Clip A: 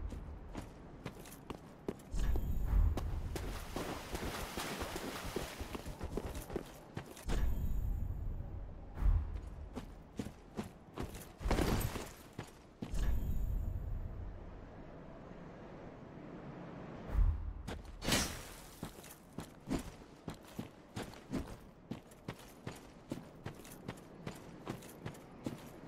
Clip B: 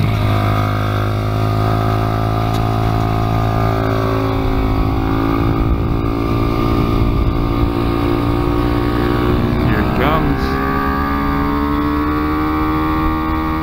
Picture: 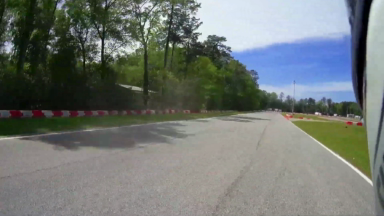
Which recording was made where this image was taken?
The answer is B